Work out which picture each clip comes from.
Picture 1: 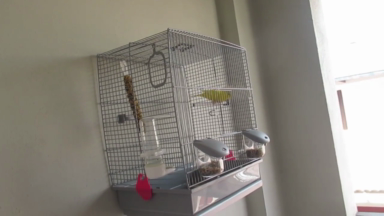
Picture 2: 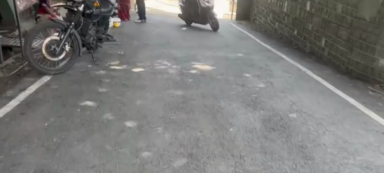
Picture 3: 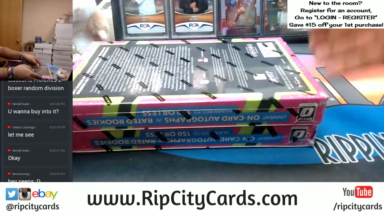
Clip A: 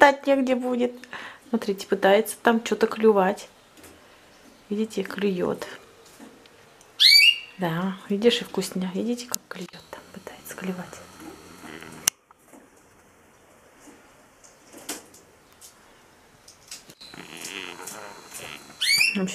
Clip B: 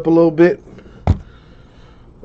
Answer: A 1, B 3